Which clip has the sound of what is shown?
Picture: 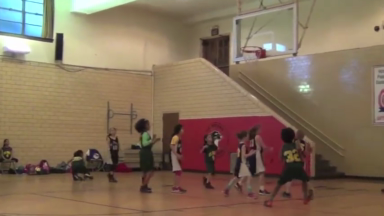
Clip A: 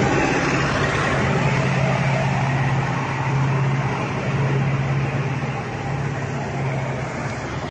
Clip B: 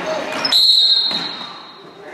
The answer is B